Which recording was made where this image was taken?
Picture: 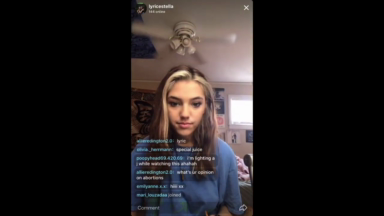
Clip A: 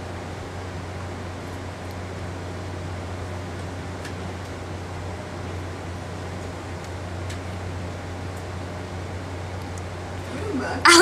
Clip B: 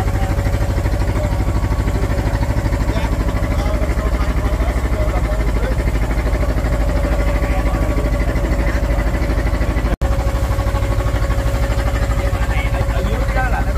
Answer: A